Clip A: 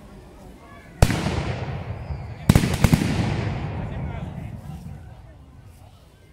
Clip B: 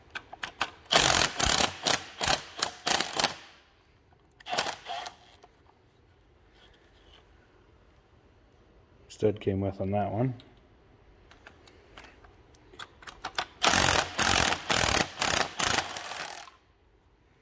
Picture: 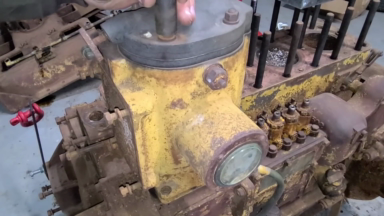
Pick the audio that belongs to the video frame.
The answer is B